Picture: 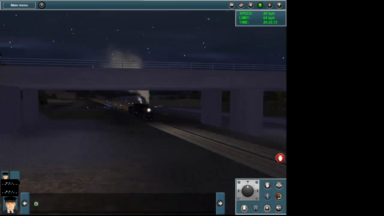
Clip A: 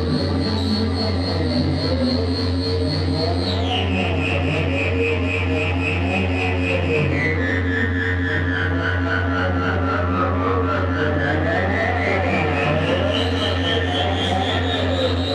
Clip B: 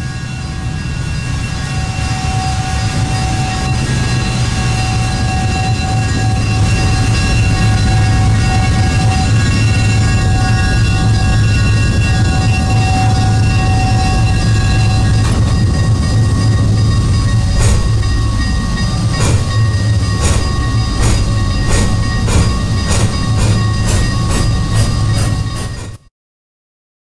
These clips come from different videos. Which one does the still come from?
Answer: B